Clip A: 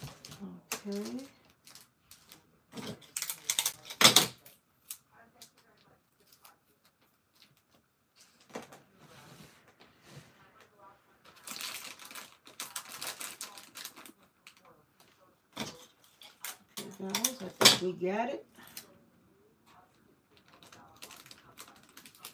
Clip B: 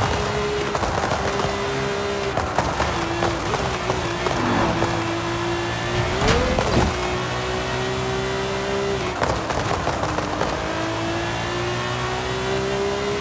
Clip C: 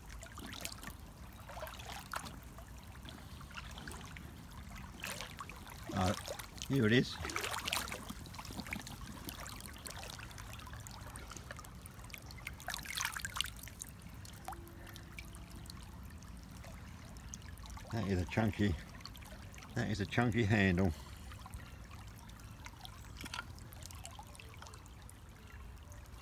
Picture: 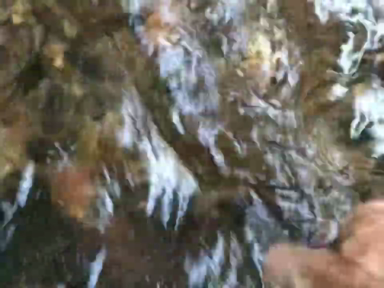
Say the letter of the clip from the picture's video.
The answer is C